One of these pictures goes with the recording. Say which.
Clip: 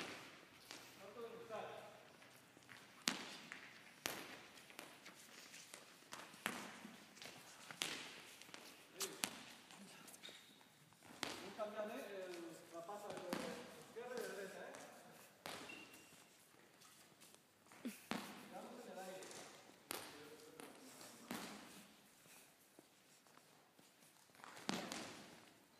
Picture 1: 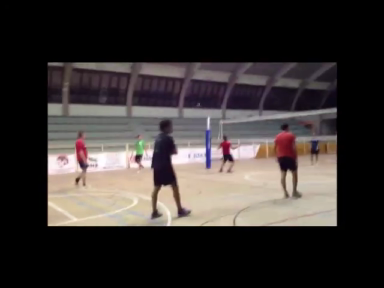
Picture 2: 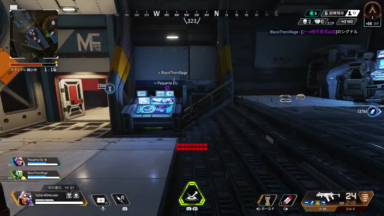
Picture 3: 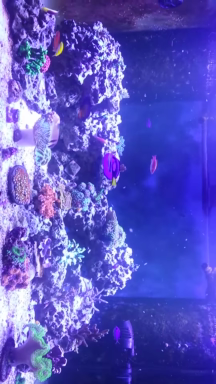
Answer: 1